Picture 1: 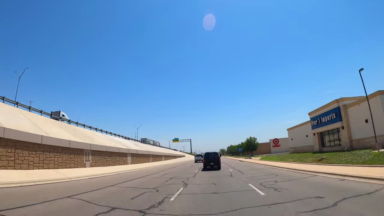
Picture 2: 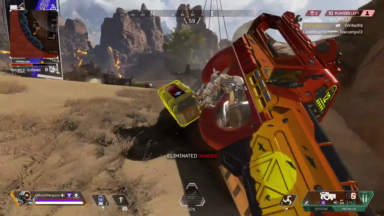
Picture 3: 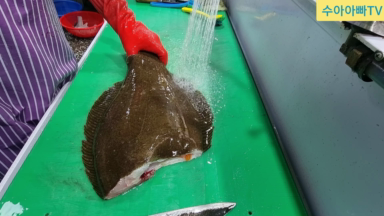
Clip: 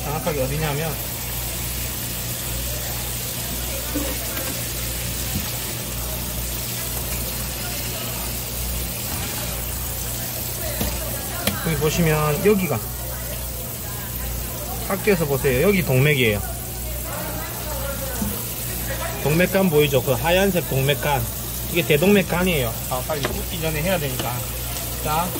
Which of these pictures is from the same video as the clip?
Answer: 3